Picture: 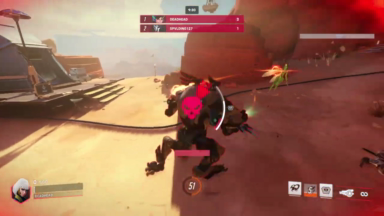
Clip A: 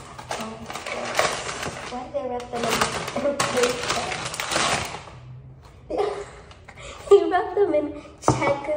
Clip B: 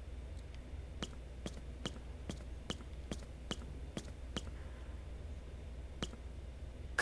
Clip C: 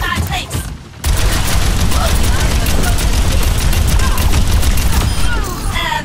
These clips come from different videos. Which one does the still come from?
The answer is C